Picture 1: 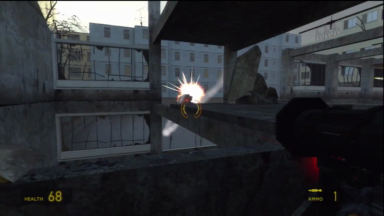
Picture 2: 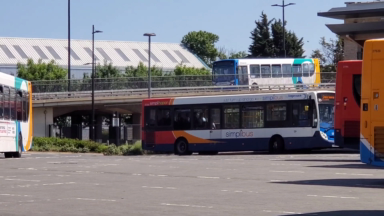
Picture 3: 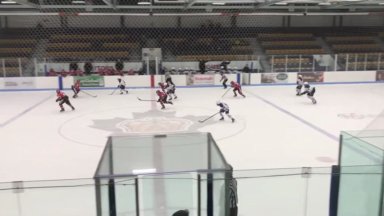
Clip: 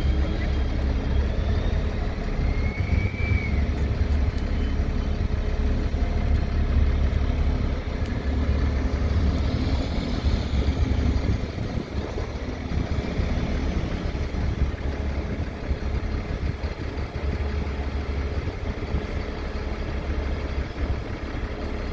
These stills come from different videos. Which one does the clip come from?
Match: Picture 2